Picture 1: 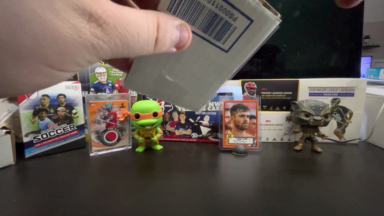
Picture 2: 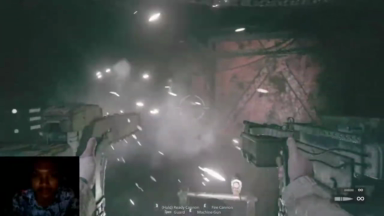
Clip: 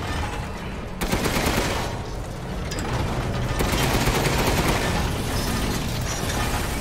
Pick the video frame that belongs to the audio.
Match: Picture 2